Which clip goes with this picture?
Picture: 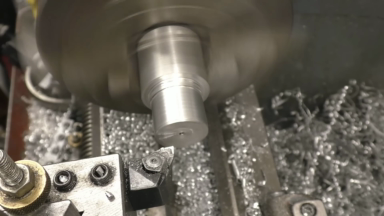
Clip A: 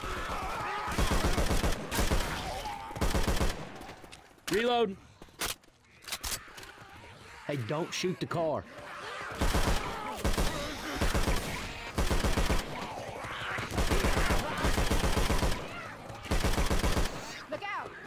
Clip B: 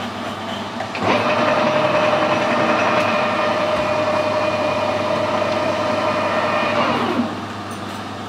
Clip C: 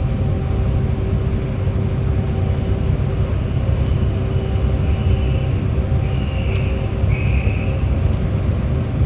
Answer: B